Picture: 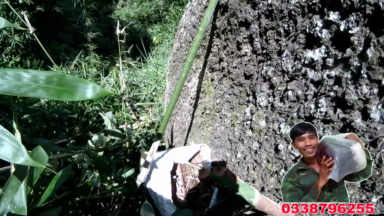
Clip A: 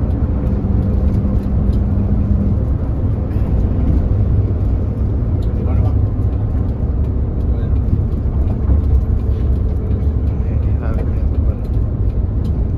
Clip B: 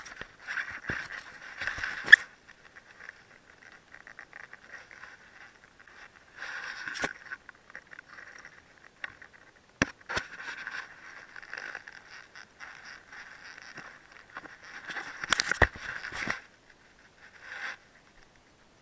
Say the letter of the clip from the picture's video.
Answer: B